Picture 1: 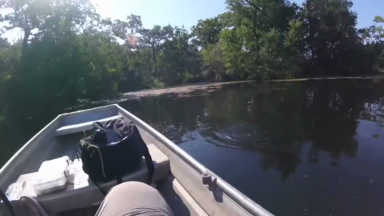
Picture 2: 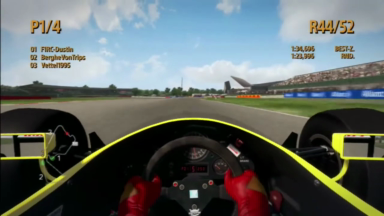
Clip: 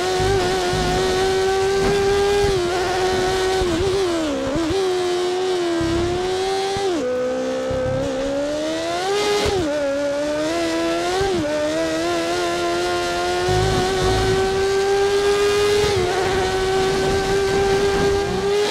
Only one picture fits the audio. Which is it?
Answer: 2